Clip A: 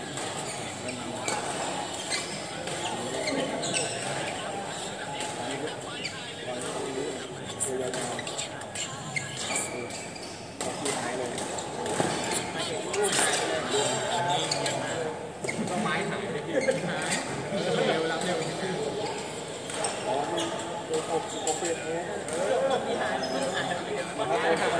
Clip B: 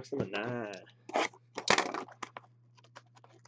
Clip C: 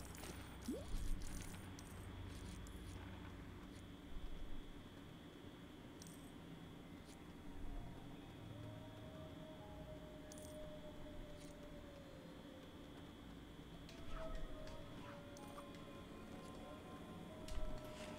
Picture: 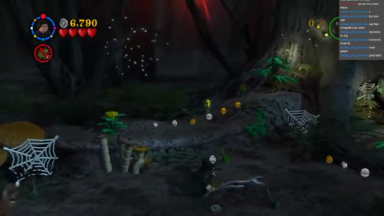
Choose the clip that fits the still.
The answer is C